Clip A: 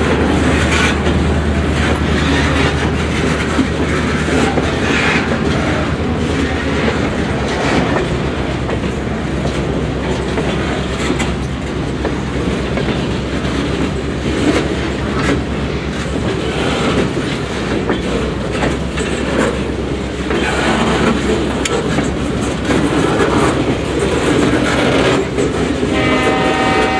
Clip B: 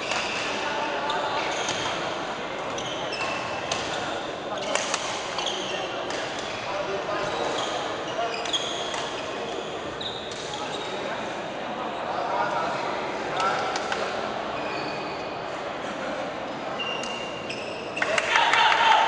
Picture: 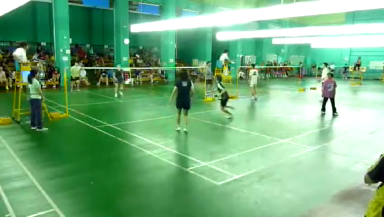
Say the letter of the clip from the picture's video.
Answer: B